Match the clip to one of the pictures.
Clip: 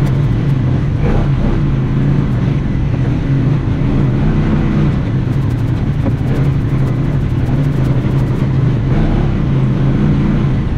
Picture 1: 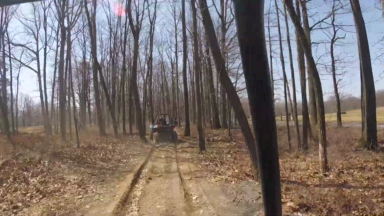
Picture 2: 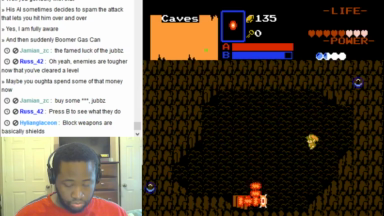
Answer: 1